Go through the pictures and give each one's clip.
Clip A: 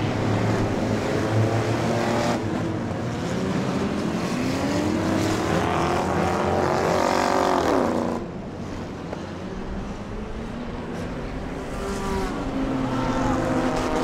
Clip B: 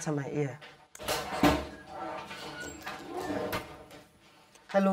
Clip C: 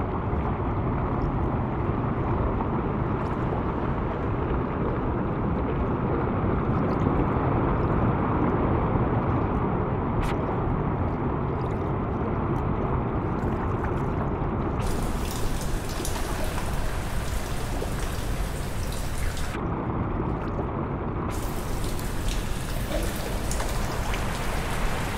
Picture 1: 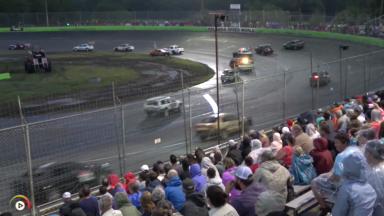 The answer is A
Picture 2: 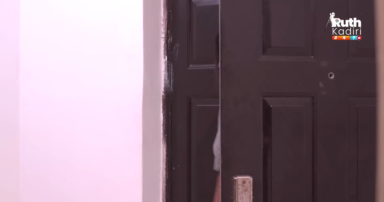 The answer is B